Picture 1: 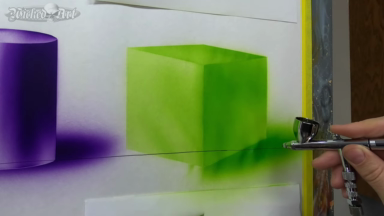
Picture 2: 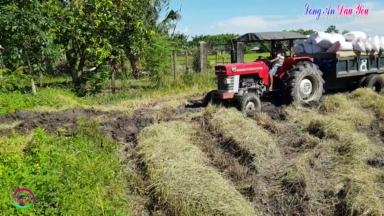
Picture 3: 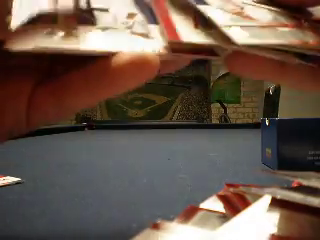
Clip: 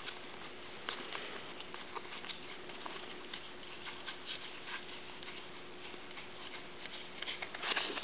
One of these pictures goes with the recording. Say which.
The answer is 3